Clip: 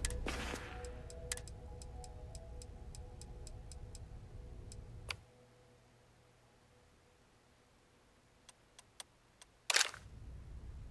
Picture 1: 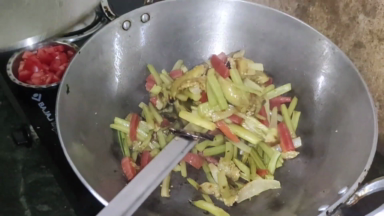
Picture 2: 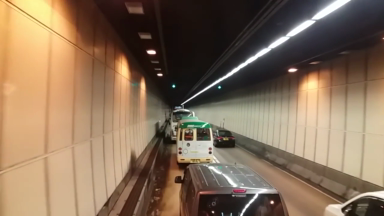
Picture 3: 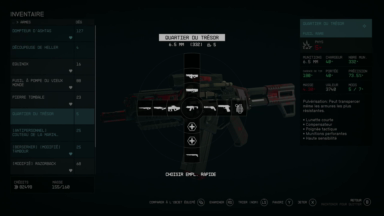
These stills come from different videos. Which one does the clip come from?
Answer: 3